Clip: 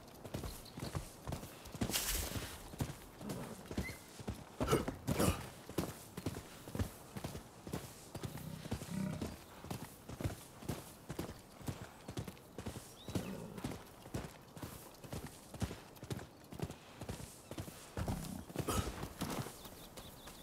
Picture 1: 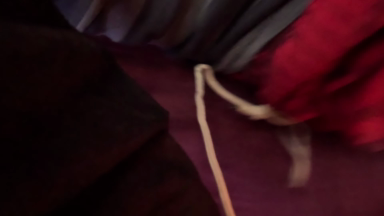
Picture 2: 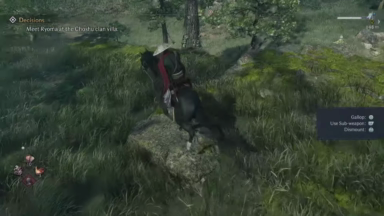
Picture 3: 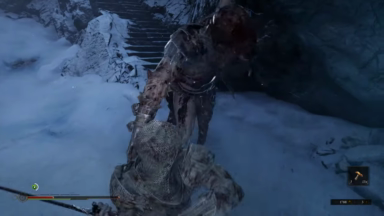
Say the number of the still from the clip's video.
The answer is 2